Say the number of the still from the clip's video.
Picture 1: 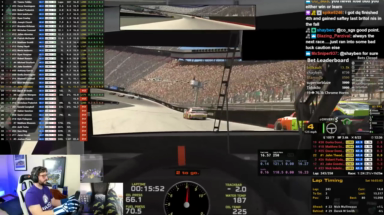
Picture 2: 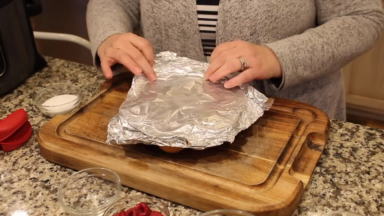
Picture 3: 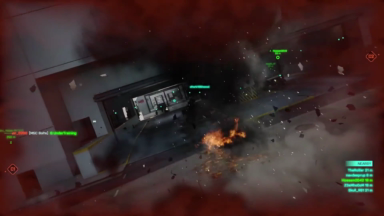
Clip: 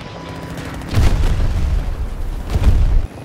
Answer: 3